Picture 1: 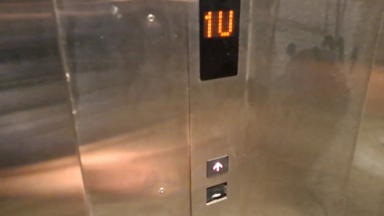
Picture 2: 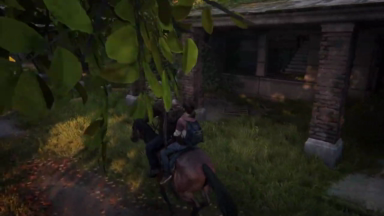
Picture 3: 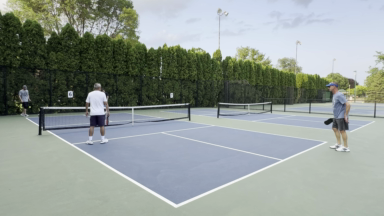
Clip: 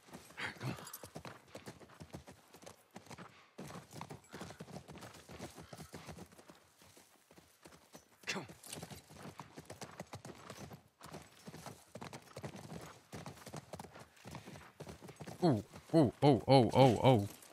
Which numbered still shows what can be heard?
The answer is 2